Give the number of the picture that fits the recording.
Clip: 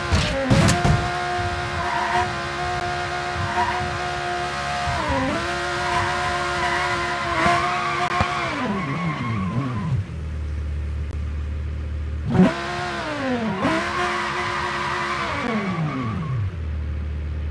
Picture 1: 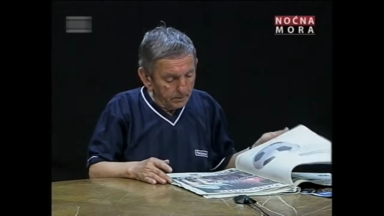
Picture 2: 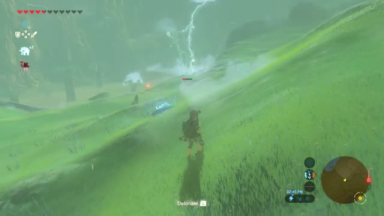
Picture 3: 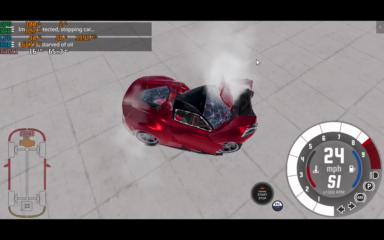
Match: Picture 3